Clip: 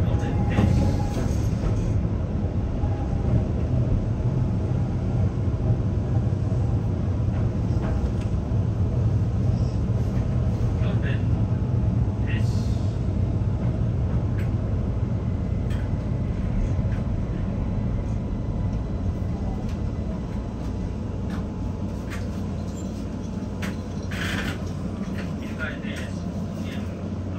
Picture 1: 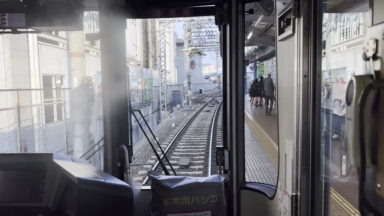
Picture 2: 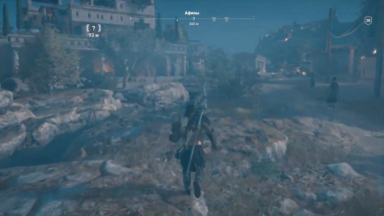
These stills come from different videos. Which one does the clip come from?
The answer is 1